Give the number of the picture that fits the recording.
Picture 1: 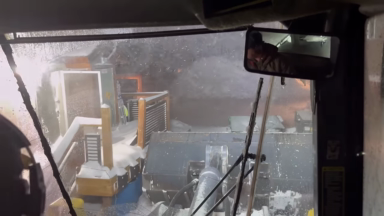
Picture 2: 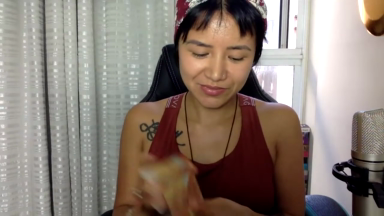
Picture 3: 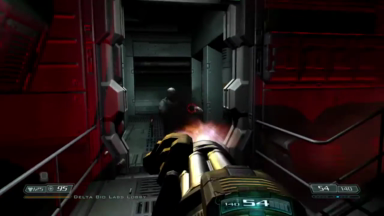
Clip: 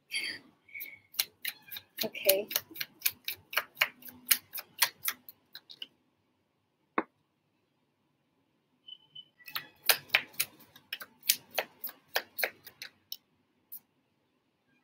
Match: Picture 2